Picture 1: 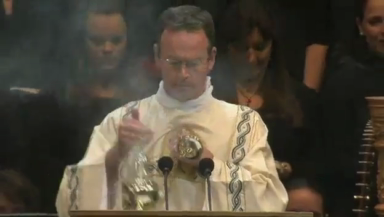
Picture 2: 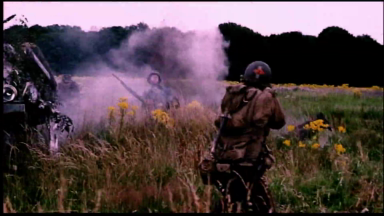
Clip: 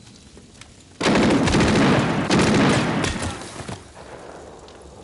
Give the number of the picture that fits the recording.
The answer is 2